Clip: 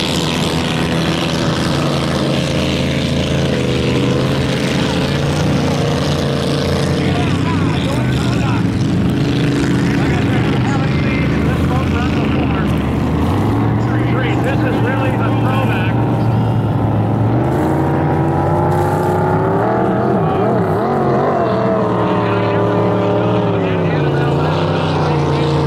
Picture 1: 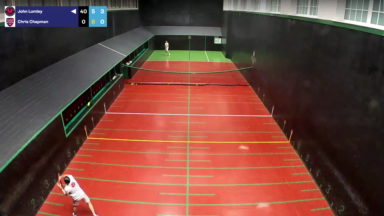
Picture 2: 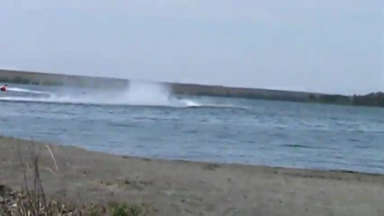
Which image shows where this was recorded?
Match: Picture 2